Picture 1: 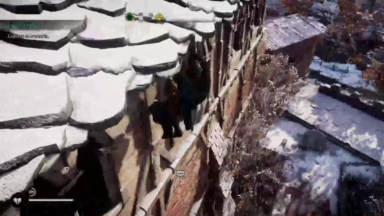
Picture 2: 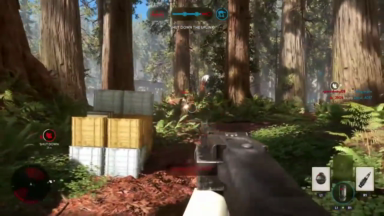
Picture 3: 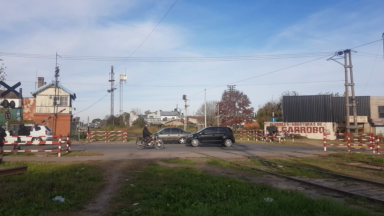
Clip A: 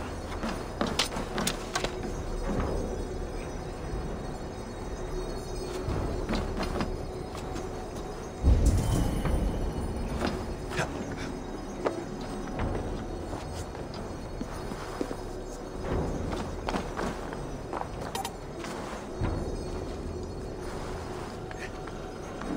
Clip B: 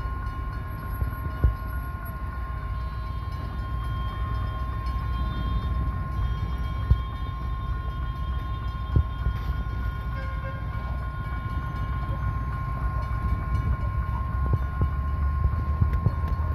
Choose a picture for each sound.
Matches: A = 1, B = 3